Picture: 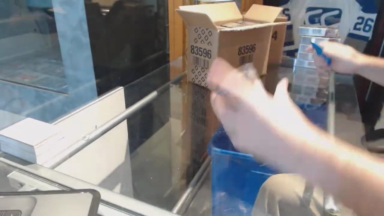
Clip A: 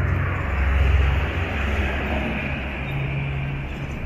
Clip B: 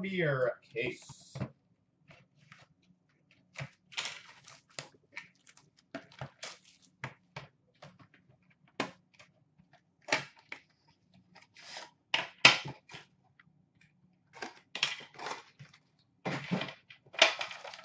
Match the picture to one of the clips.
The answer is B